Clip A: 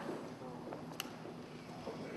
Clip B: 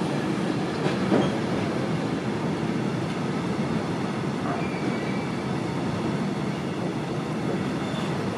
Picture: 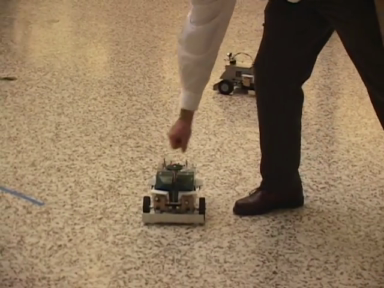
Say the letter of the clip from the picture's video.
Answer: A